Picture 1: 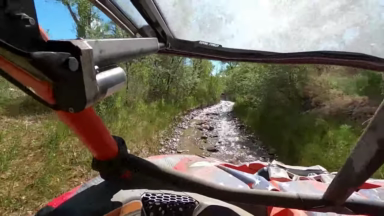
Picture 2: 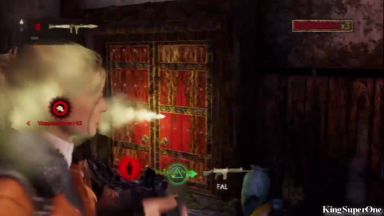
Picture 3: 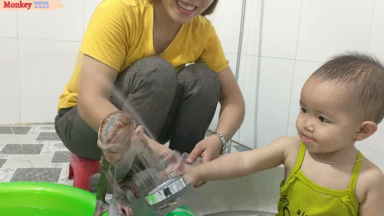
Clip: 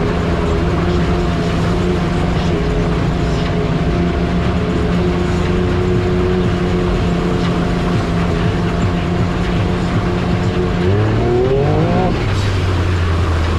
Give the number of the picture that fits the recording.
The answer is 1